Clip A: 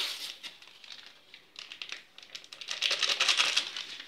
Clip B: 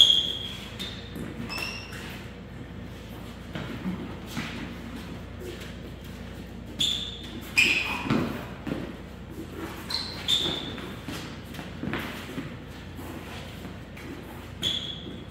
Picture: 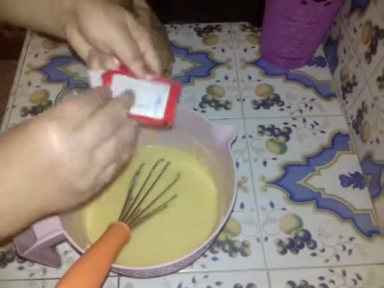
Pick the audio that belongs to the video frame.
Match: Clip A